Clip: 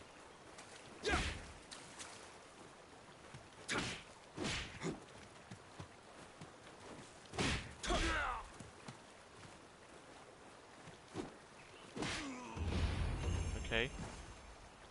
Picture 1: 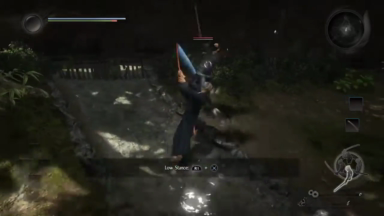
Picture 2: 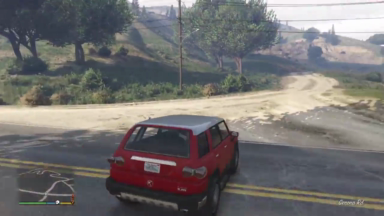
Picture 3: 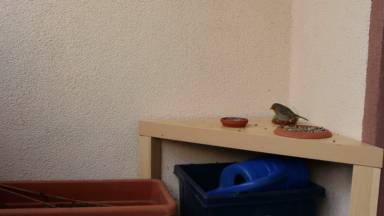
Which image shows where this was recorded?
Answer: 1